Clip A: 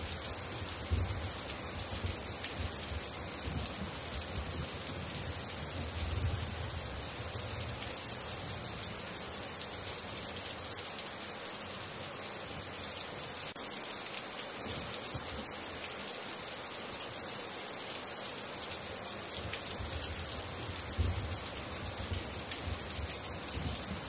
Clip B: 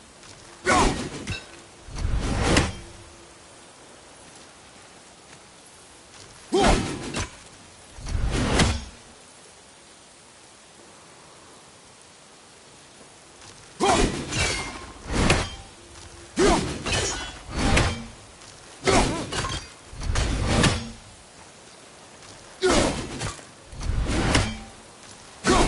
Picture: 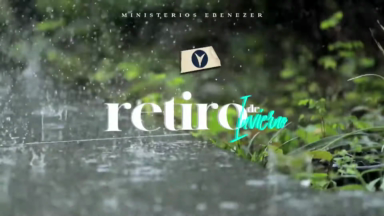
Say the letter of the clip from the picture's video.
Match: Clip A